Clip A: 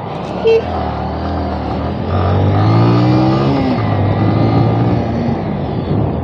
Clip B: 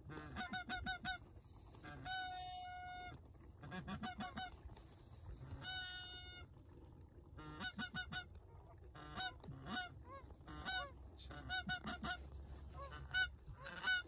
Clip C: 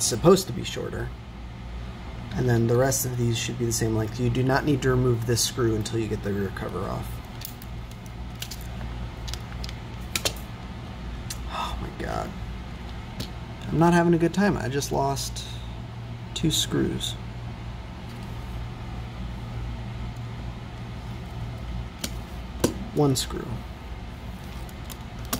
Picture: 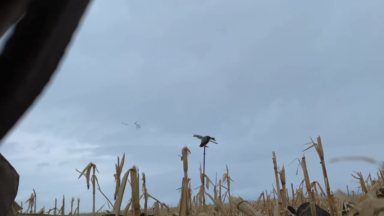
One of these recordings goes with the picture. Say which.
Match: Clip B